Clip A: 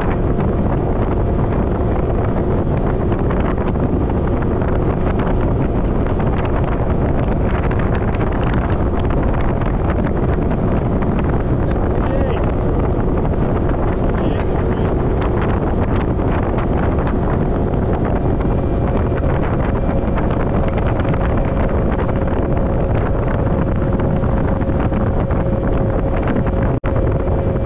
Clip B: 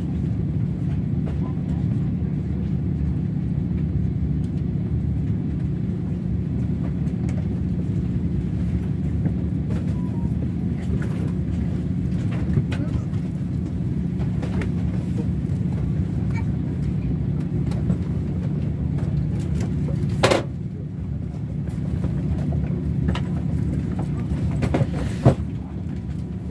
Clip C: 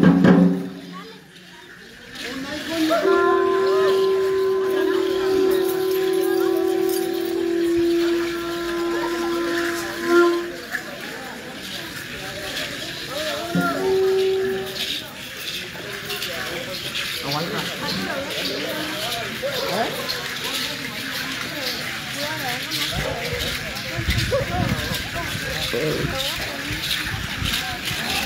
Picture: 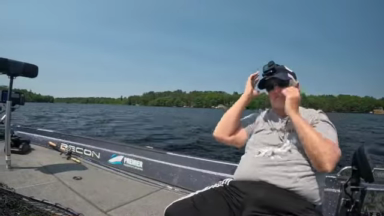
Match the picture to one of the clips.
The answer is A